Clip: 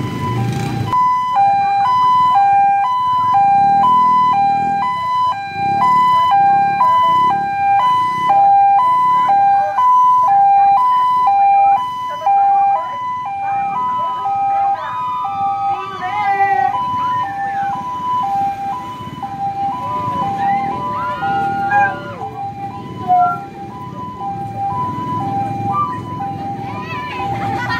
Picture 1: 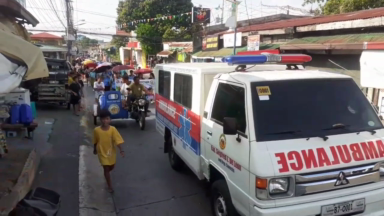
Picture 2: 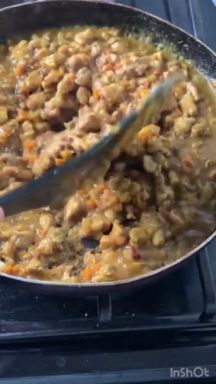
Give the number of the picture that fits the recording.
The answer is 1